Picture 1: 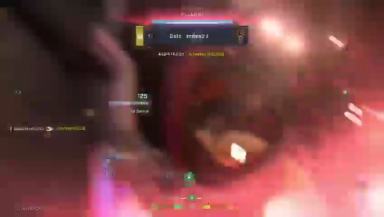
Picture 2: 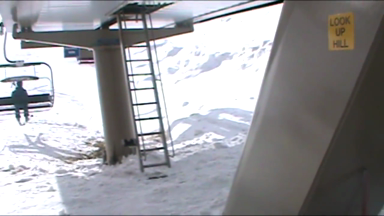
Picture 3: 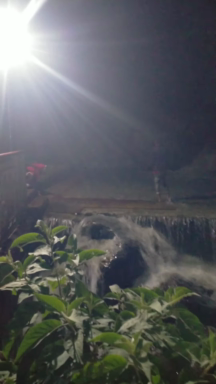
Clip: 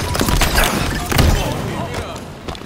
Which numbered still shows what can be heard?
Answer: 1